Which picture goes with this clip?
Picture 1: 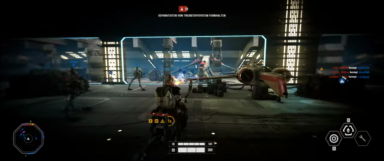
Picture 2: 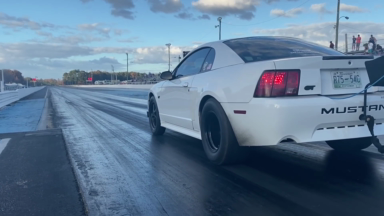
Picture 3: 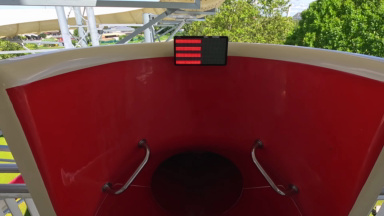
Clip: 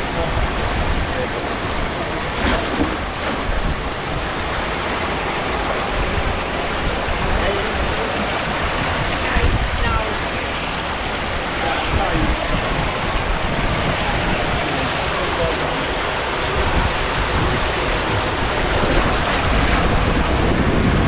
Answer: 3